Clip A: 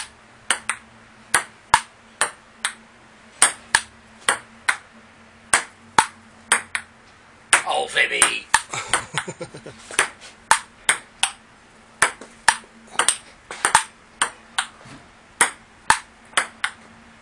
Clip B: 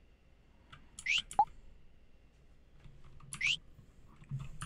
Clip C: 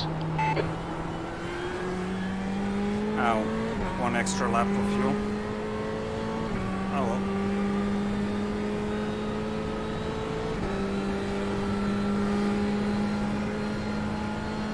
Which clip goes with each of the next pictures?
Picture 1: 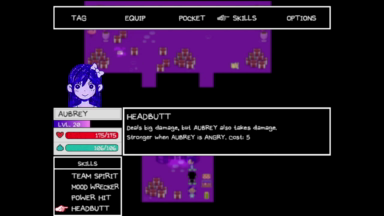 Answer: B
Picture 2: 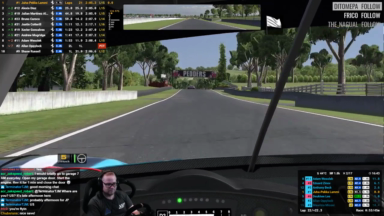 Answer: C